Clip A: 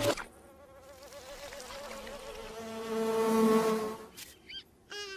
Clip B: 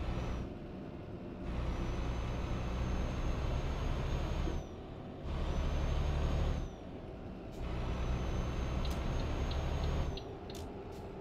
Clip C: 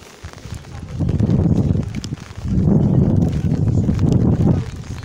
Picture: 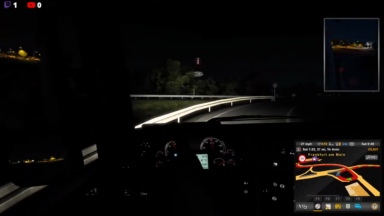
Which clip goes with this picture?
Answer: B